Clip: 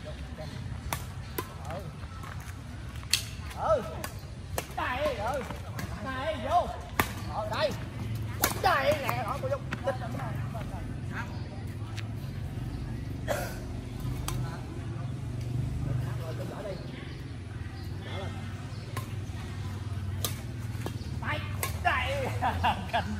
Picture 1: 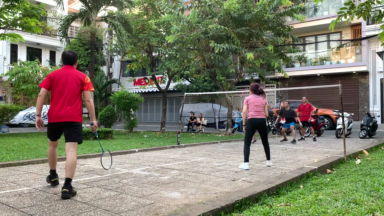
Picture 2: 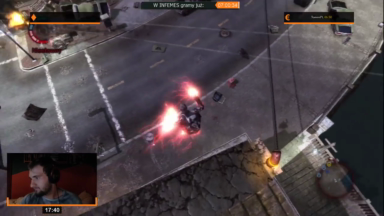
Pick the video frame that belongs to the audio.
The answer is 1